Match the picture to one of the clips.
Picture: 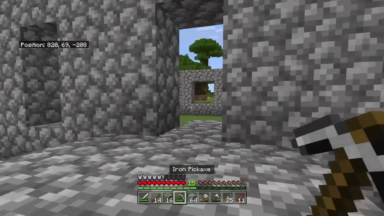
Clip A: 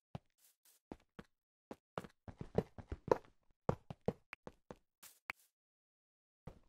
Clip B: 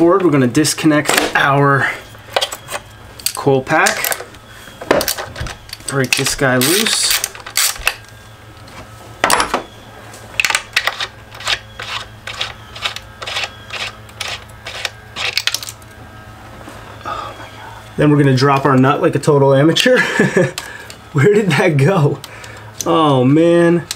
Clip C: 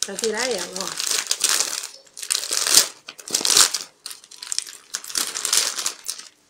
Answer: A